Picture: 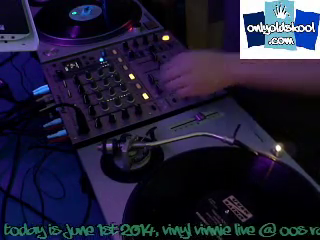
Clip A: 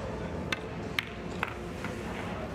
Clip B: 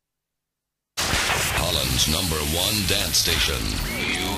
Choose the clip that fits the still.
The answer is B